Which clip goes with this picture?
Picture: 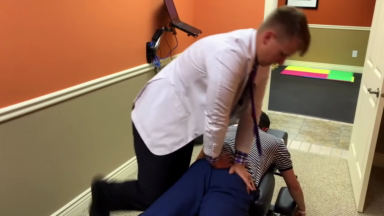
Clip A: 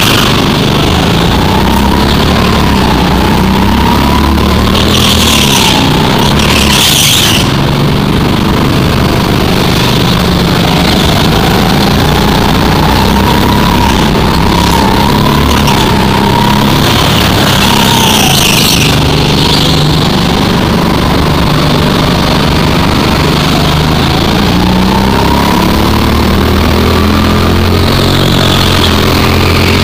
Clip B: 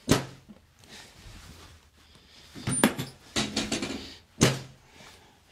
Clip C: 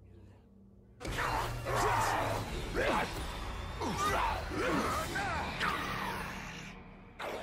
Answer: B